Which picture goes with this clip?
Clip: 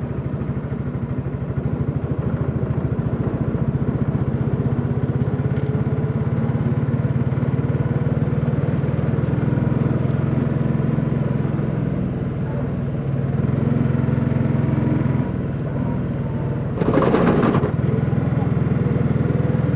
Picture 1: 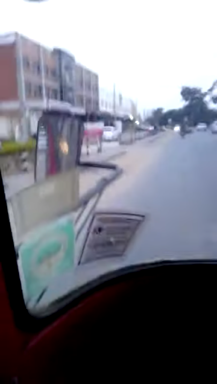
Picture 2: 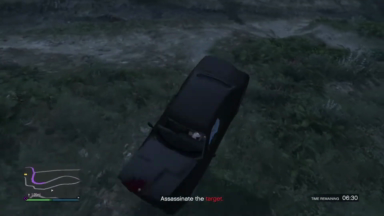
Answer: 1